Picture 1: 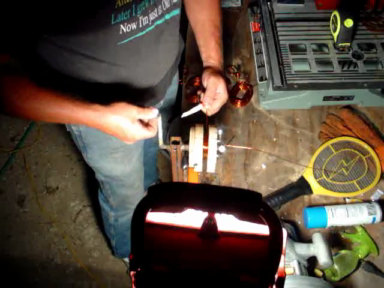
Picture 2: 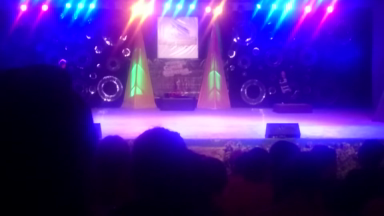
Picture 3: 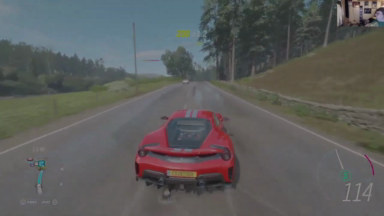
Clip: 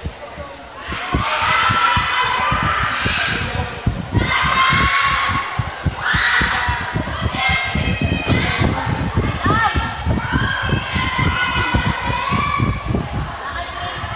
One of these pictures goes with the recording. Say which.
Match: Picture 2